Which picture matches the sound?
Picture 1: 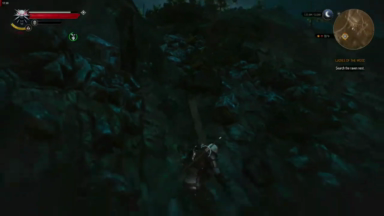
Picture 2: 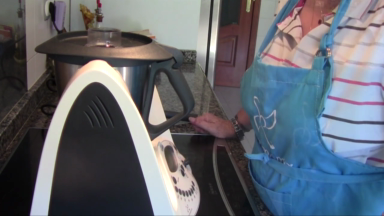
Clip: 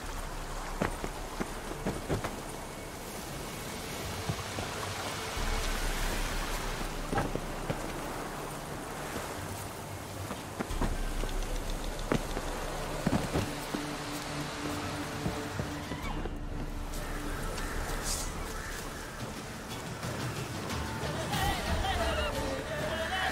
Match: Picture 1